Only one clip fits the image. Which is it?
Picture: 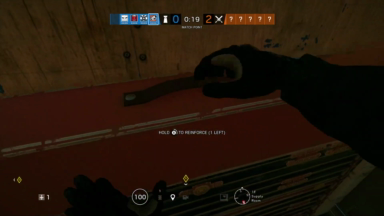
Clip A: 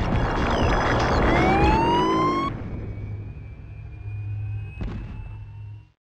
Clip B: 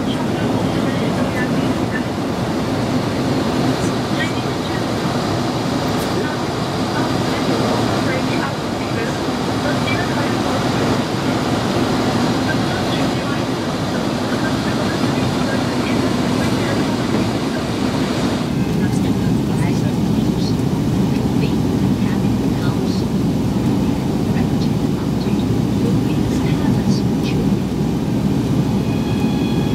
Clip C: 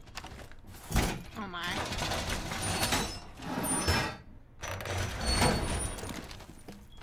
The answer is C